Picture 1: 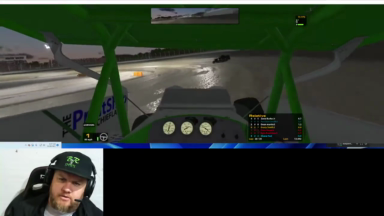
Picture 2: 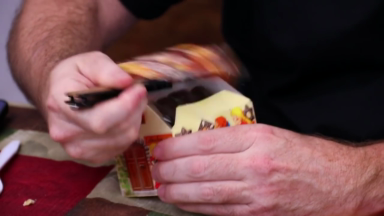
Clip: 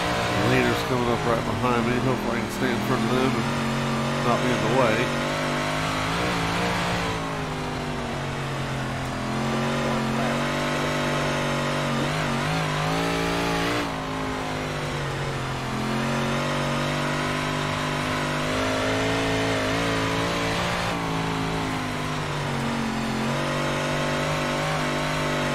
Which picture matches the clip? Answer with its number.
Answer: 1